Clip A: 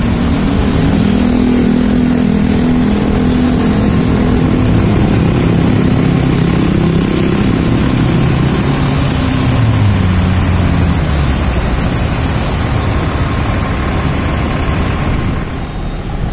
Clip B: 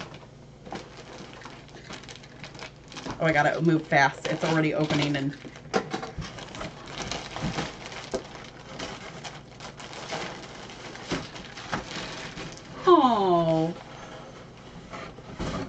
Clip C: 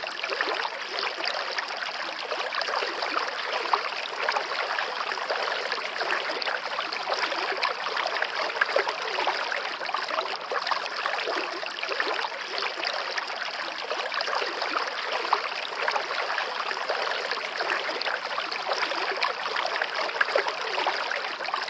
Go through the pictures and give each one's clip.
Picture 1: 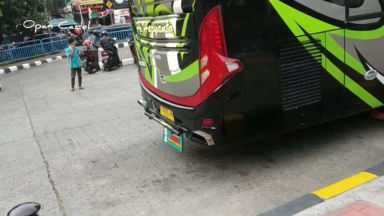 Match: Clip A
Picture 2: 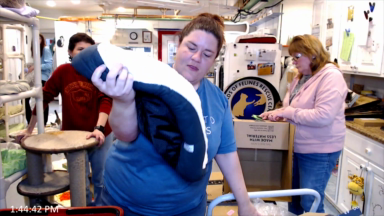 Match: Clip B